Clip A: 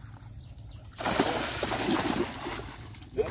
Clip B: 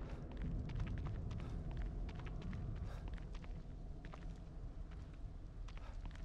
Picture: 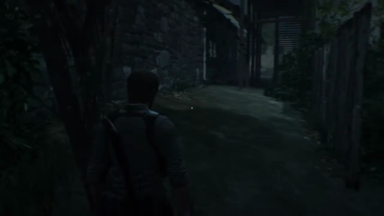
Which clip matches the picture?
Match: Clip B